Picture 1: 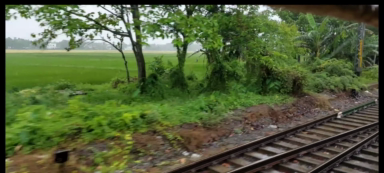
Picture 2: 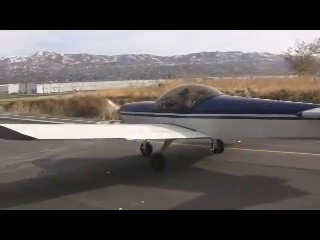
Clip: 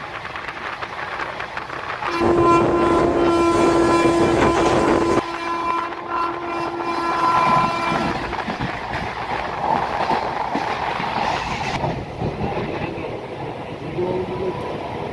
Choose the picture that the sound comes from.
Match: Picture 1